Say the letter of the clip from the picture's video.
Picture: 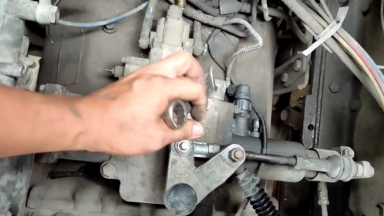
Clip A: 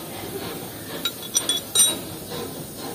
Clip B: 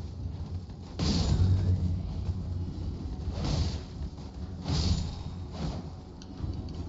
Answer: A